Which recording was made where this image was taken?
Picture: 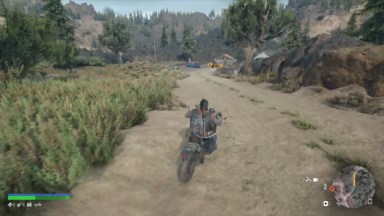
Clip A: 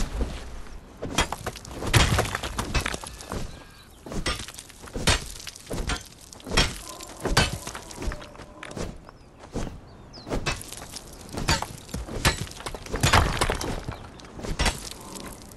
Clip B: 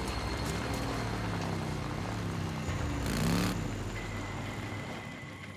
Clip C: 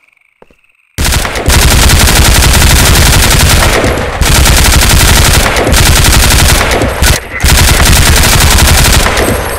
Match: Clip B